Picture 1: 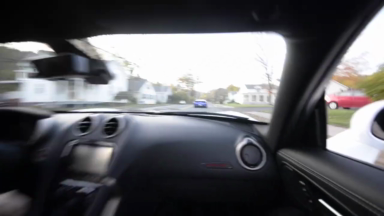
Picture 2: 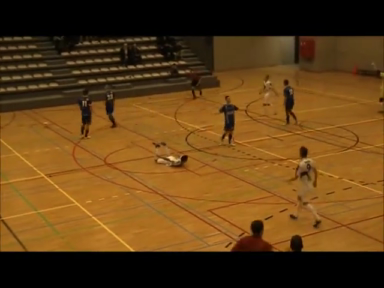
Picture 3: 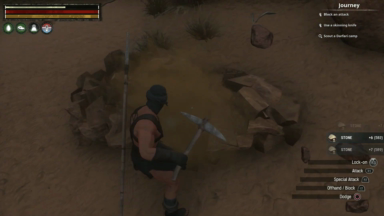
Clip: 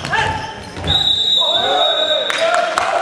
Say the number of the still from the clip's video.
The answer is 2